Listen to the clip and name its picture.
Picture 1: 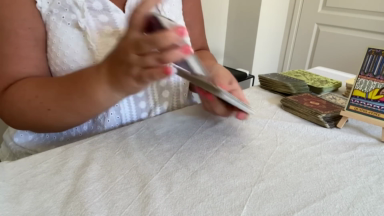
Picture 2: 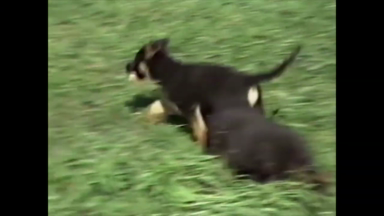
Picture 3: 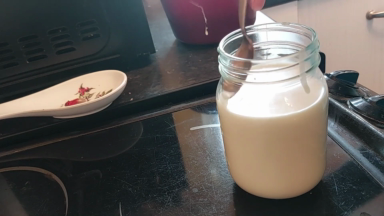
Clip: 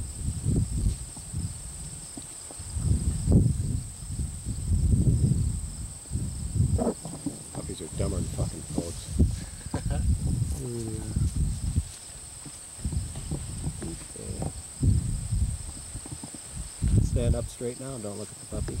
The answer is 2